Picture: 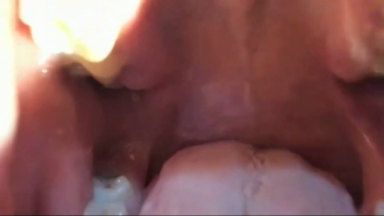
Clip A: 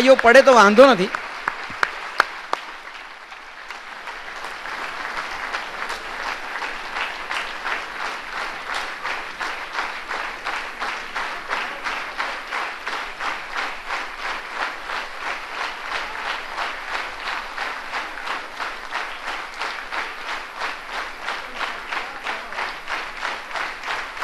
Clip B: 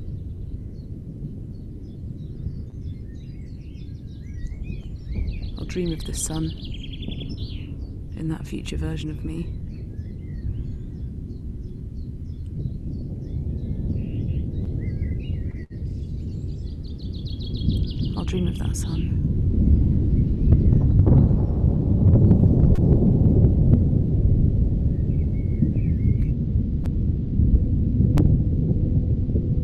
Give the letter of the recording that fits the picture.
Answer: B